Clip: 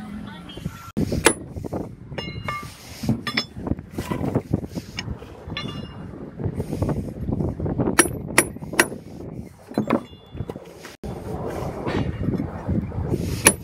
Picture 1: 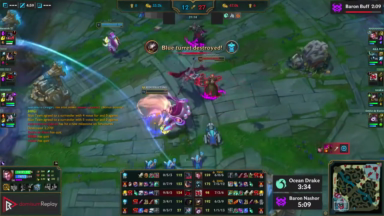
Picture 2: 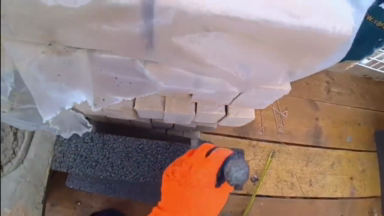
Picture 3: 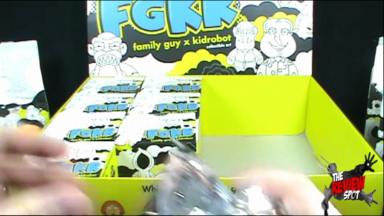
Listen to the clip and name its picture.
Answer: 2